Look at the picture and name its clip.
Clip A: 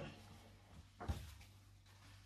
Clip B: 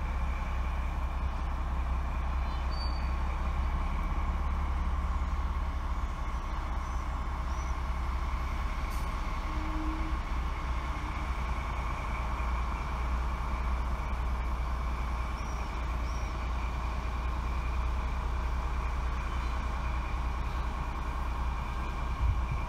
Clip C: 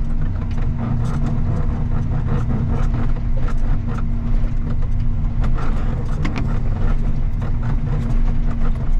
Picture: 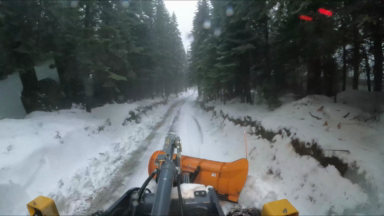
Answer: C